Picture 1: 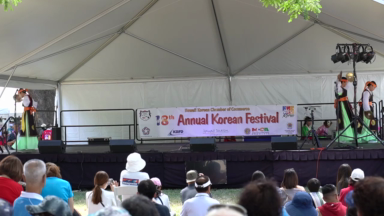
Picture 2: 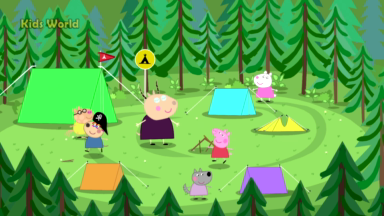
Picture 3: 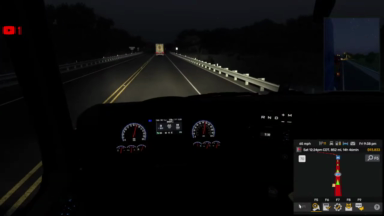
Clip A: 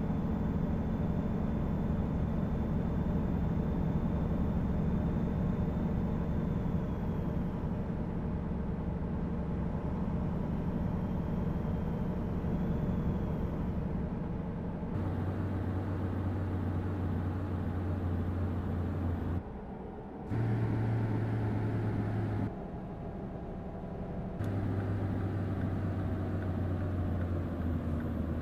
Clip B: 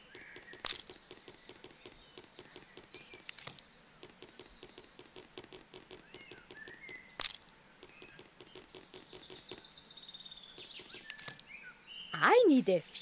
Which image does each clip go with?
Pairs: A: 3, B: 2